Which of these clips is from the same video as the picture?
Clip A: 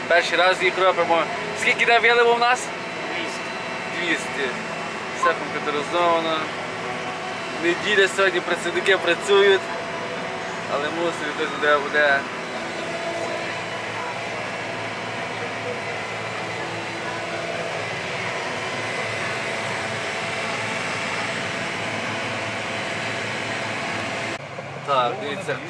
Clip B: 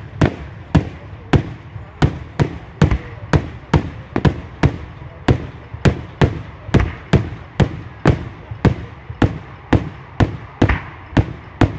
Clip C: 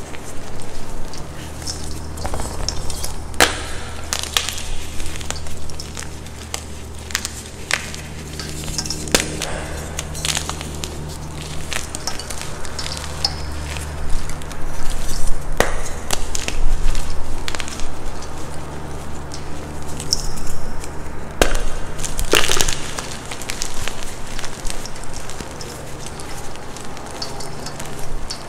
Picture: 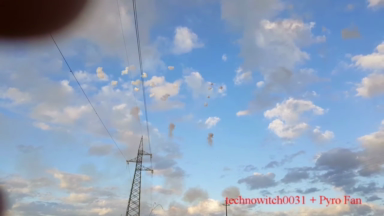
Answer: B